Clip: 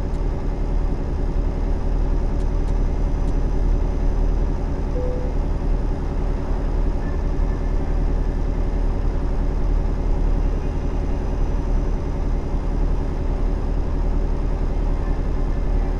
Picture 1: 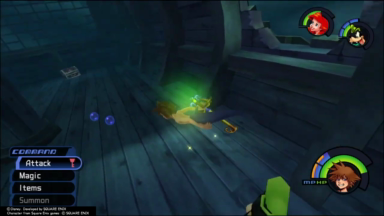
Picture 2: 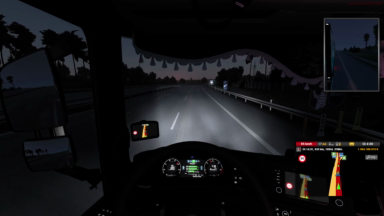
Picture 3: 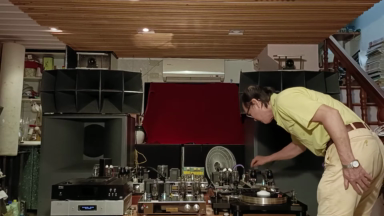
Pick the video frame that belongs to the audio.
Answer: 2